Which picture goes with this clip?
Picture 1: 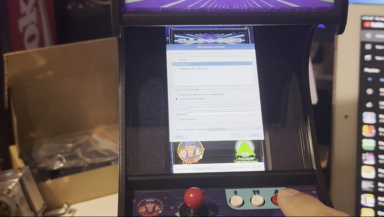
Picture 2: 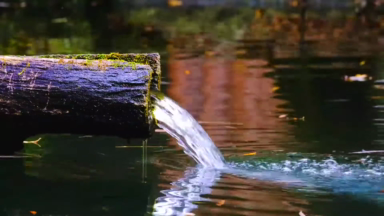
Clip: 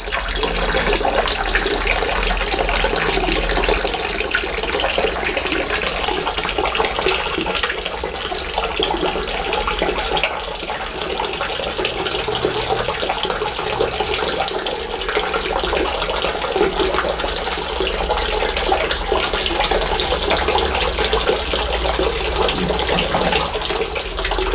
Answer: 2